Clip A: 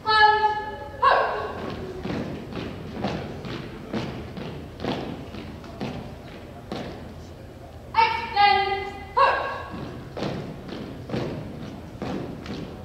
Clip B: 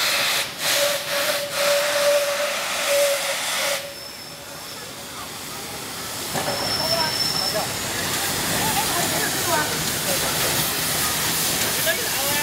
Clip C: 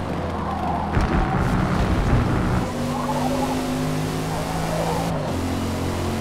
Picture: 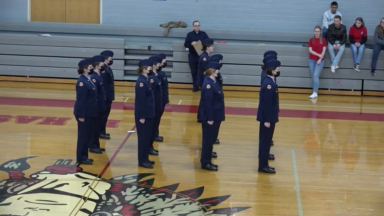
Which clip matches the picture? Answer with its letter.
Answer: A